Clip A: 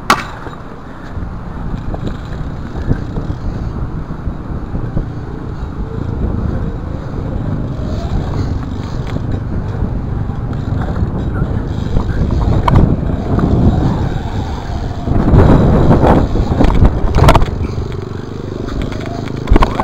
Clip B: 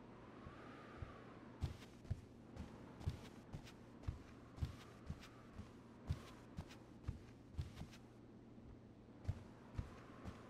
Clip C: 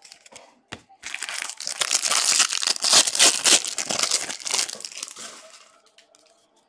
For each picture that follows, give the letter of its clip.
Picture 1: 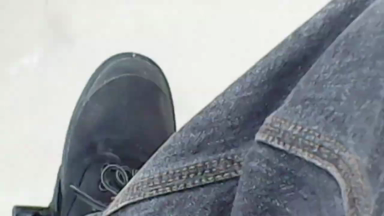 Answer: A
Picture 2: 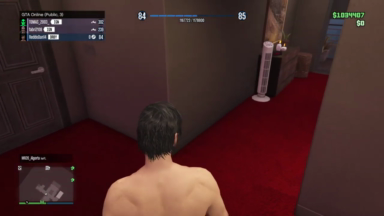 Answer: B